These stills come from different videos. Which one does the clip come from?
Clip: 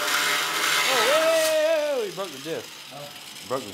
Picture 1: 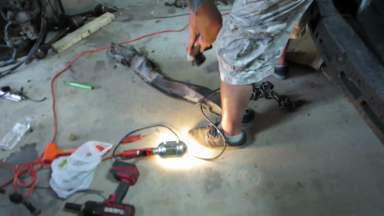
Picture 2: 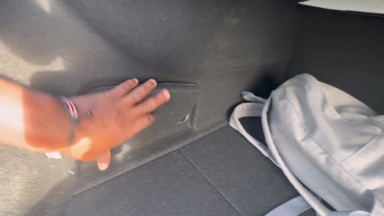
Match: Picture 1